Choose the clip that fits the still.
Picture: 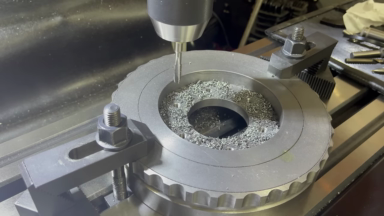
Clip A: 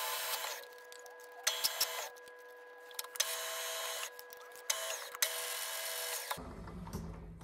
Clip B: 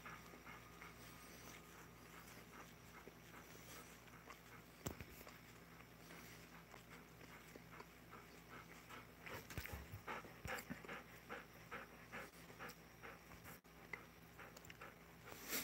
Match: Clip A